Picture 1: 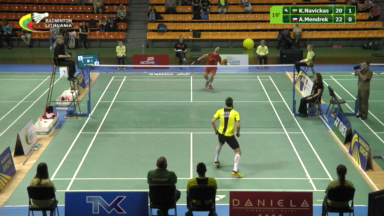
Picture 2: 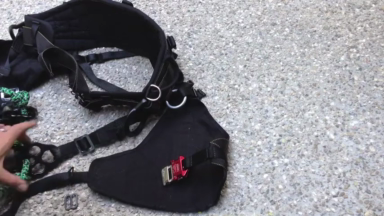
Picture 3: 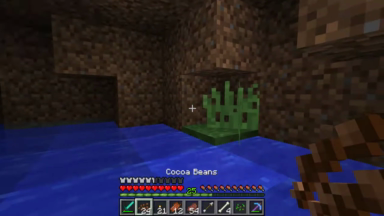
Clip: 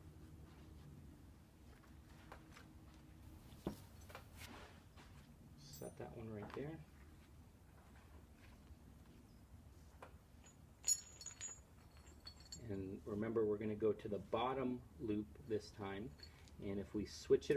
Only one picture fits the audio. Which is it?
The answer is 2